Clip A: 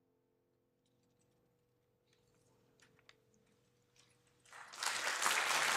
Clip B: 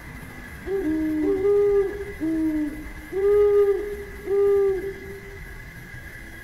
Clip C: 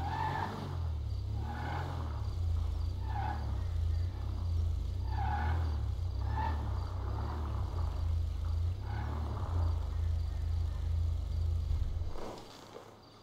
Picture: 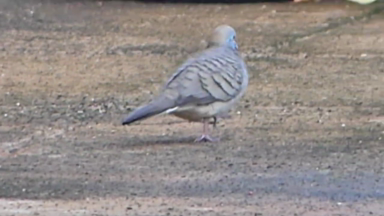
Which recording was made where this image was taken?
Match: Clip B